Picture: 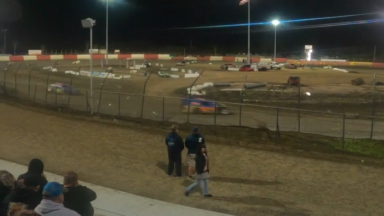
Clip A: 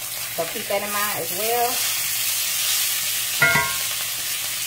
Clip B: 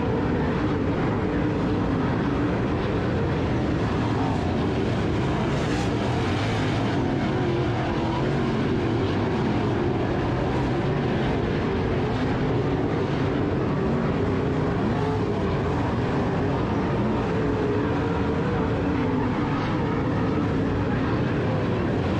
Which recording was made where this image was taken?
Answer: B